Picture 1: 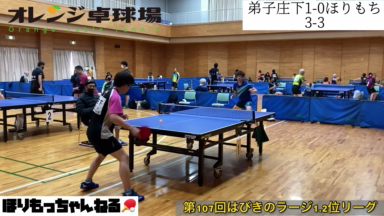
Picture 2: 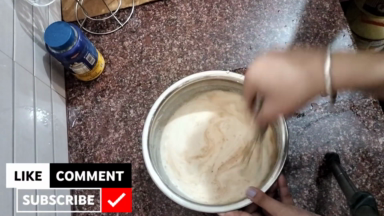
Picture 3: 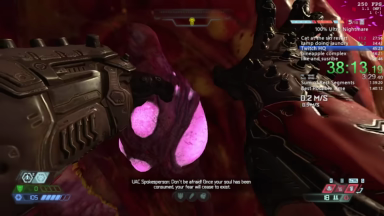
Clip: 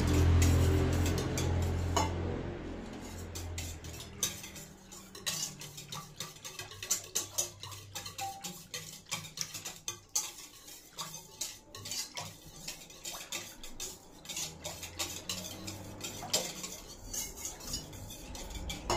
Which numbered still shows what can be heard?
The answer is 2